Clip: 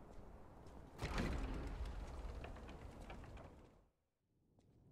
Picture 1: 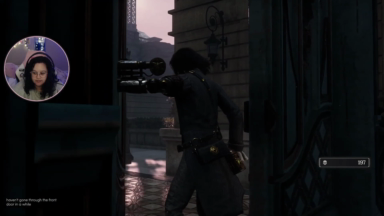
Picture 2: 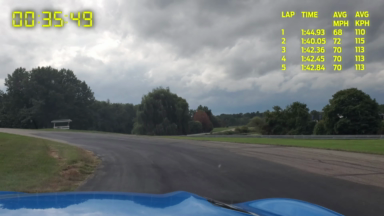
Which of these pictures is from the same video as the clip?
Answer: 1